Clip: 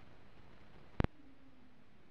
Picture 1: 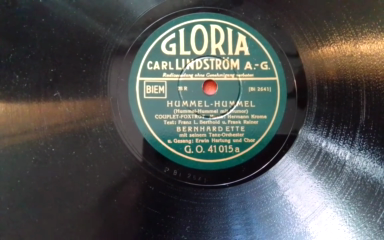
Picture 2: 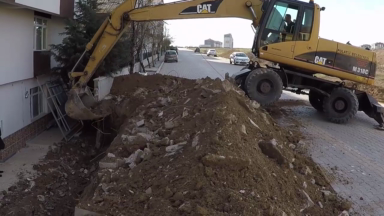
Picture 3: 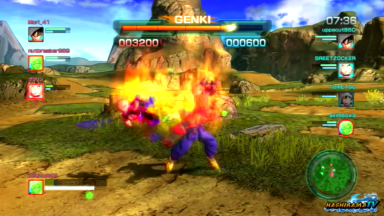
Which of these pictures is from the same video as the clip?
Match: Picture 1